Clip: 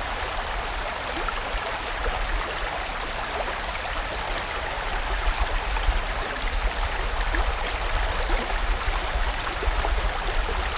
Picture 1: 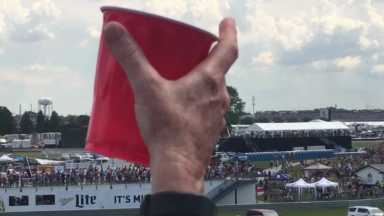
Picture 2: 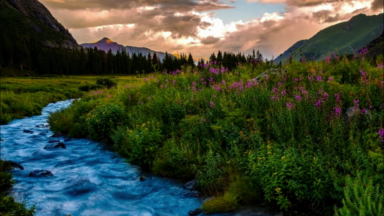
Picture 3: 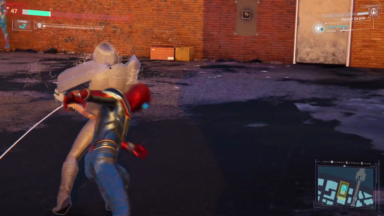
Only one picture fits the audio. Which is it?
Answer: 2